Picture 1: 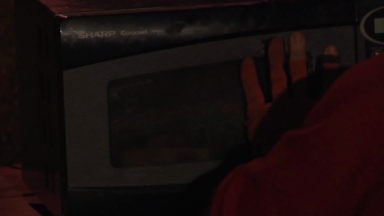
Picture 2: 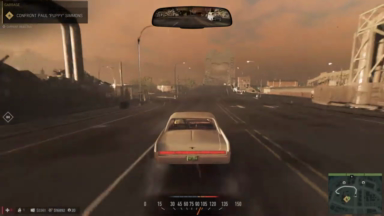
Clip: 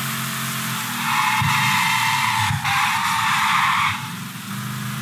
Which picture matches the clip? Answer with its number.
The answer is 2